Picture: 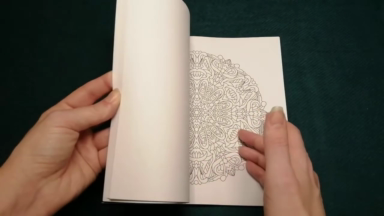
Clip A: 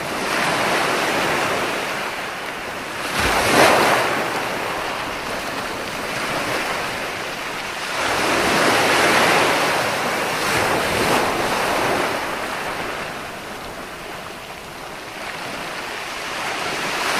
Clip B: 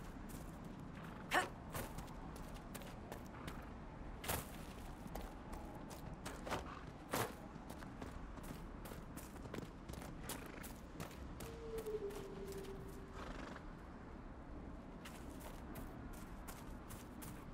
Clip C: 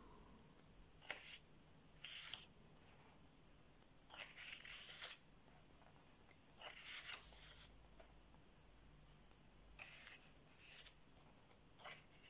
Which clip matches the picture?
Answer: C